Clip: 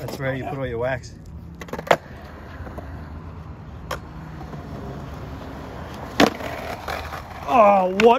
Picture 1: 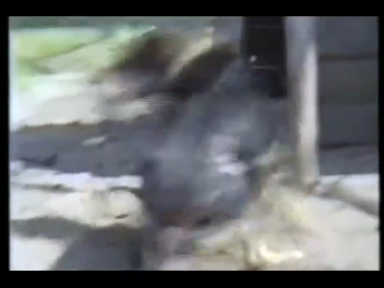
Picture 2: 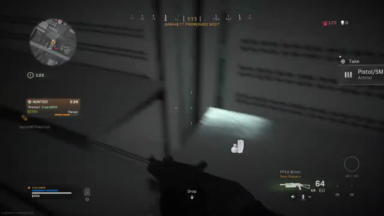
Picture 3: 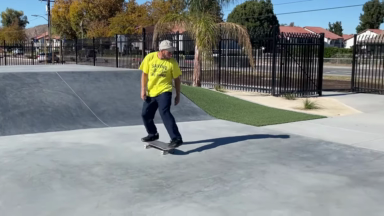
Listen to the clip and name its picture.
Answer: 3